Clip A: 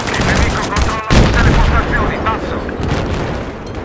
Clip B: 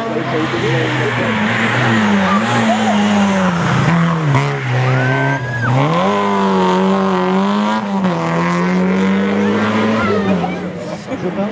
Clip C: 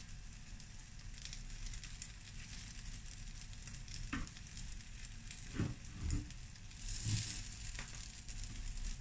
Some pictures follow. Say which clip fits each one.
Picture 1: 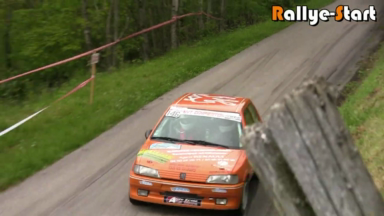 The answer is B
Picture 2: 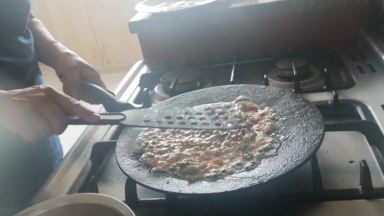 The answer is C